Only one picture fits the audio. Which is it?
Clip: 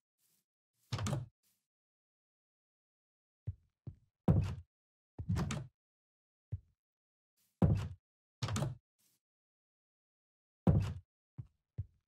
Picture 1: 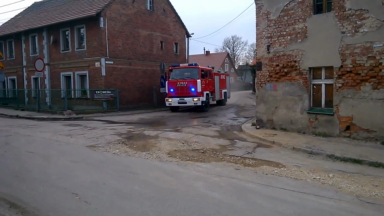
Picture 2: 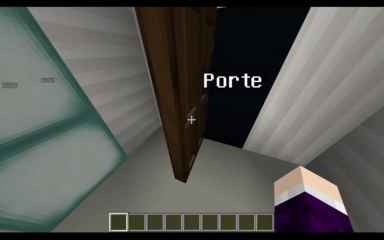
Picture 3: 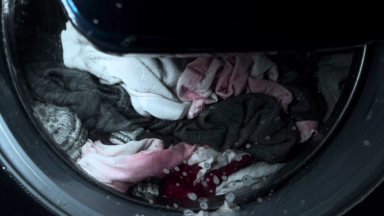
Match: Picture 2